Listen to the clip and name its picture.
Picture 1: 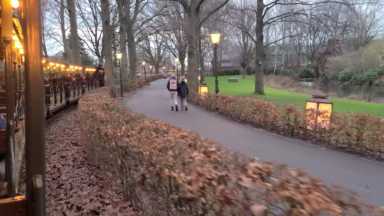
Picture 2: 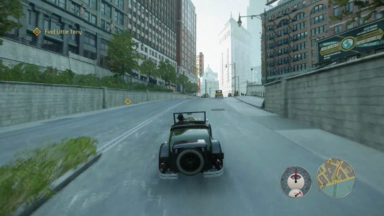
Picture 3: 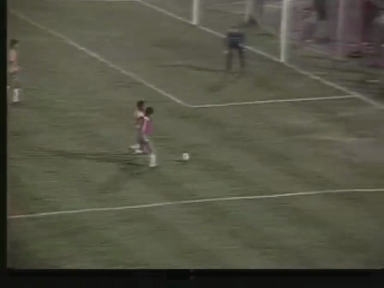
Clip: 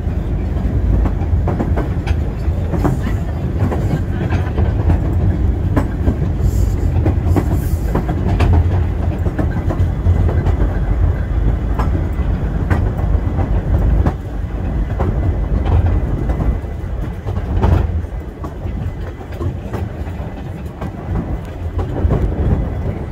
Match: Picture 1